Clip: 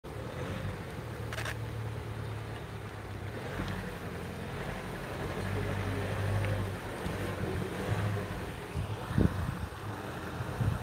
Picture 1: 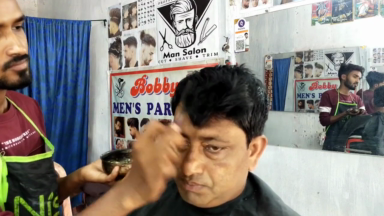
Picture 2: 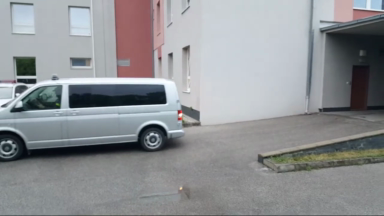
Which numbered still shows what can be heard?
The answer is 2